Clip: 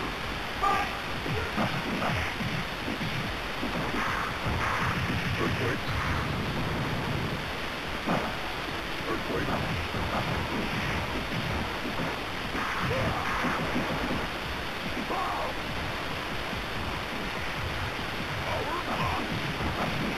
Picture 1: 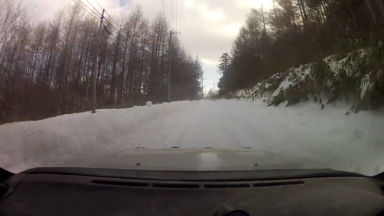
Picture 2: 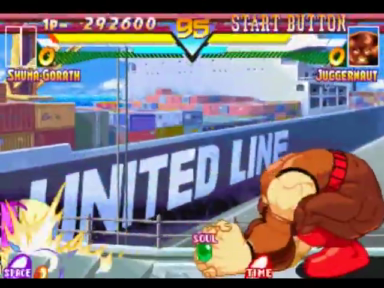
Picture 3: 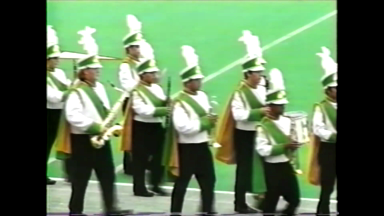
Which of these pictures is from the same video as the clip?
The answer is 2